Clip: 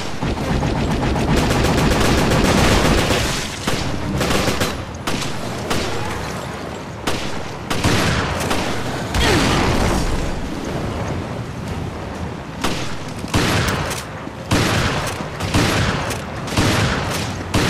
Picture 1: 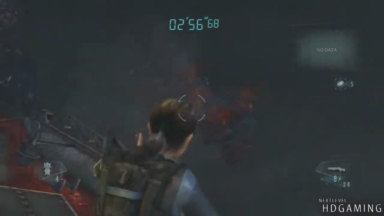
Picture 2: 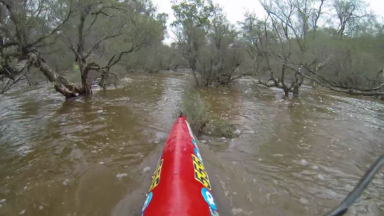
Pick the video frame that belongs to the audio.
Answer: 1